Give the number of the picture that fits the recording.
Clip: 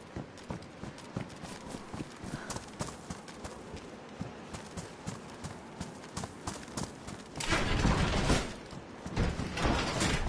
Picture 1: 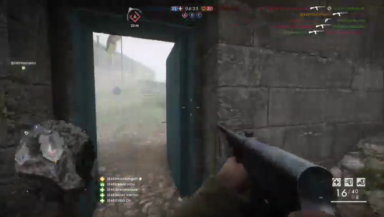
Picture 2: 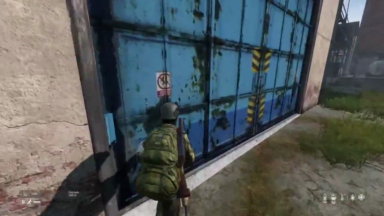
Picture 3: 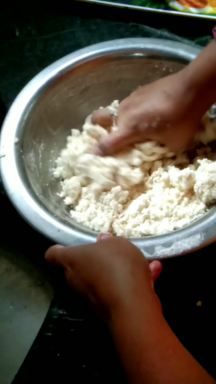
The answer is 2